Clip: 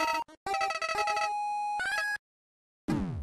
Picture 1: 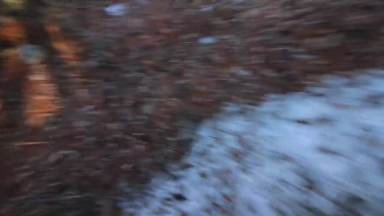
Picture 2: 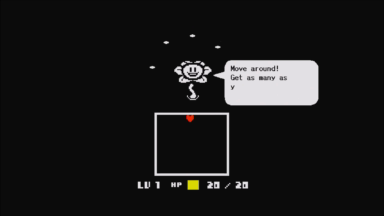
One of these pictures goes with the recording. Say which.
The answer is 2